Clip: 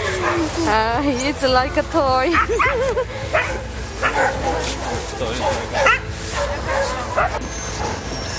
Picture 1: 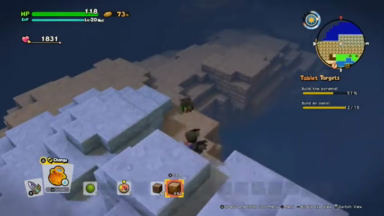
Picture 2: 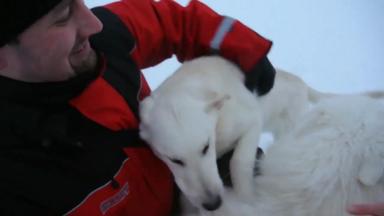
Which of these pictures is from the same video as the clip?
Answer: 2